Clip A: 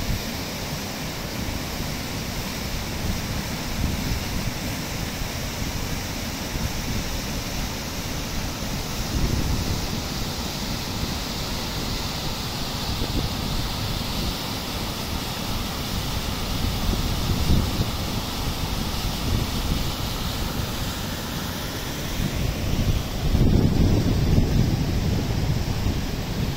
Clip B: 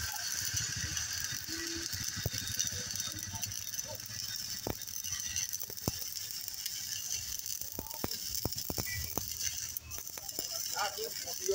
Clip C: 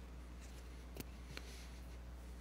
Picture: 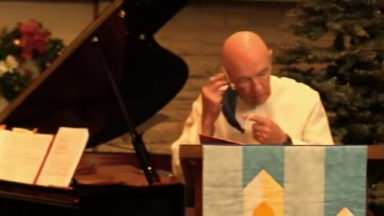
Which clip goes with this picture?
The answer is C